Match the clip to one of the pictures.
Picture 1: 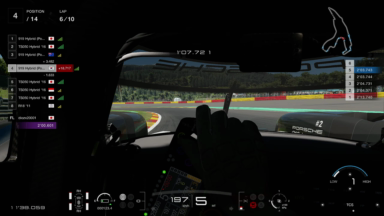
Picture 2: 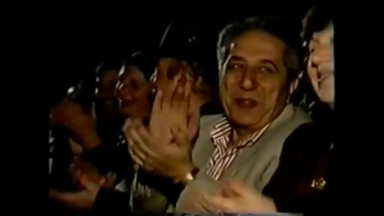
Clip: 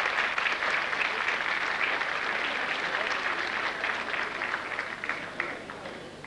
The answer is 2